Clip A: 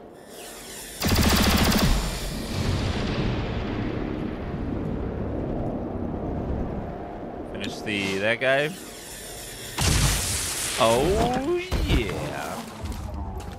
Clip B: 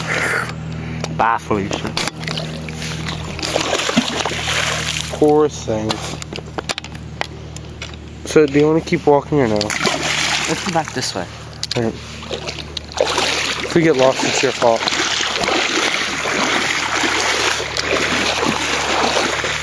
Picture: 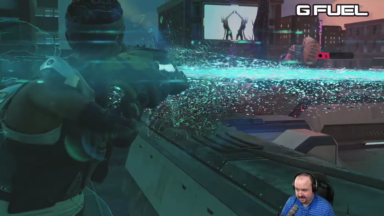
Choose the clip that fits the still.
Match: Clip A